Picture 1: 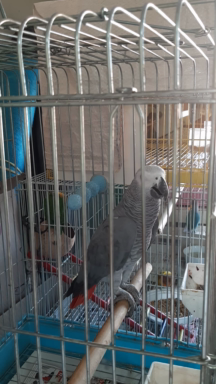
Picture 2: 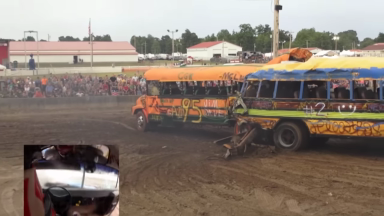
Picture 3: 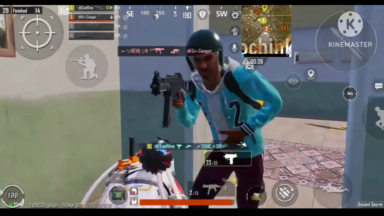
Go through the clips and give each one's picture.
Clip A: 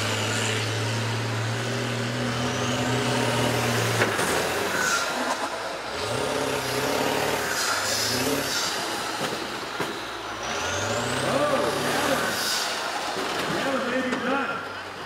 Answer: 2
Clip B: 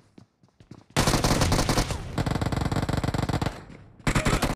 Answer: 3